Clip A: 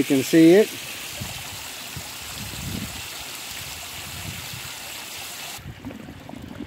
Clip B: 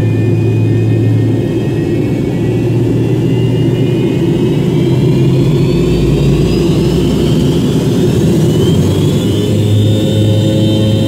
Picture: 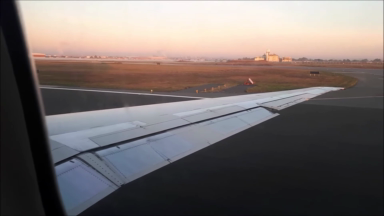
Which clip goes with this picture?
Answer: B